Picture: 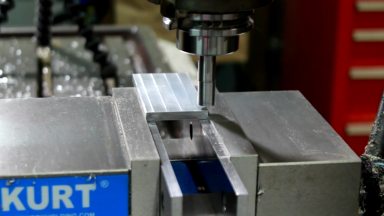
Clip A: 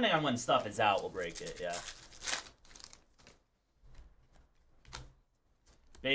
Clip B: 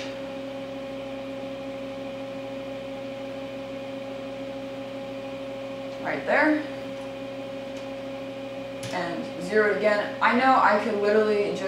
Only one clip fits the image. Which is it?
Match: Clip B